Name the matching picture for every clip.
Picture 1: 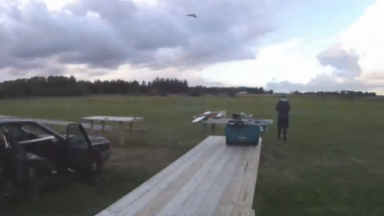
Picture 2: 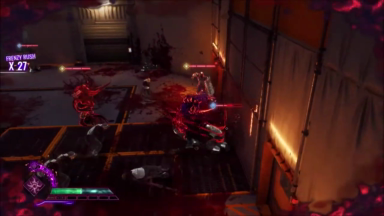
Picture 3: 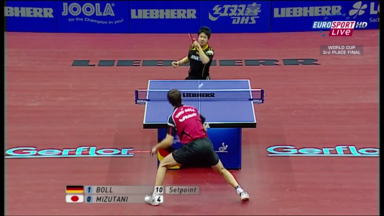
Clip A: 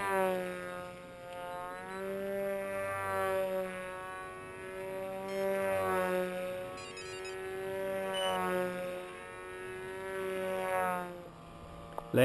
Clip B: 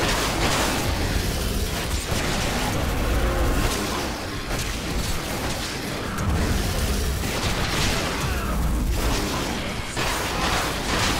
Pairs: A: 1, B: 2